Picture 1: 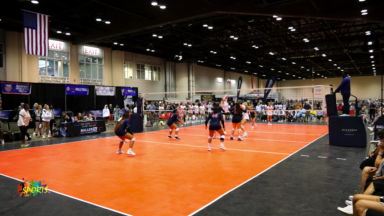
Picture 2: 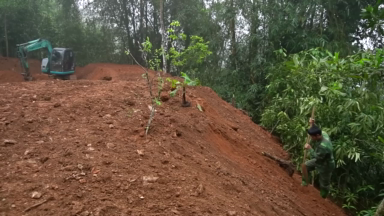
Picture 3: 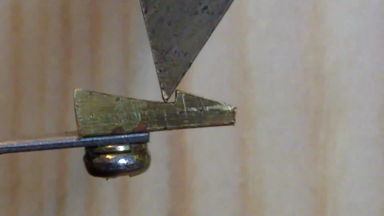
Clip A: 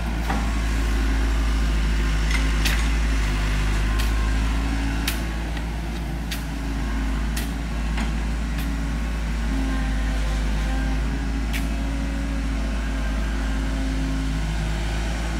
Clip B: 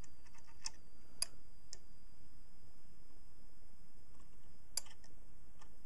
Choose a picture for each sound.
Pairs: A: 2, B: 3